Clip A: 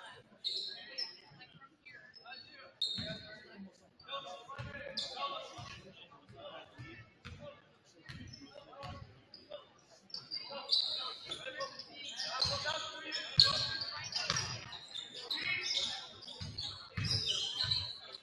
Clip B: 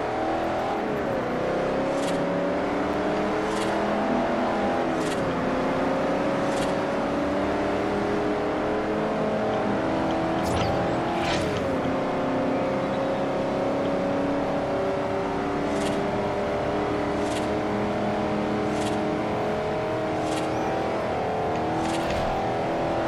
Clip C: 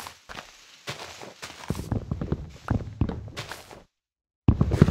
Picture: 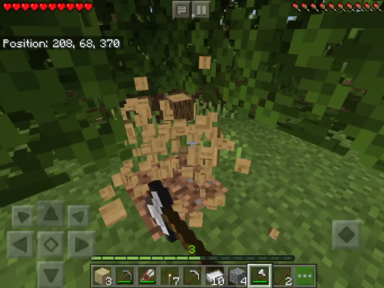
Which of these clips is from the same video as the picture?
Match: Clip C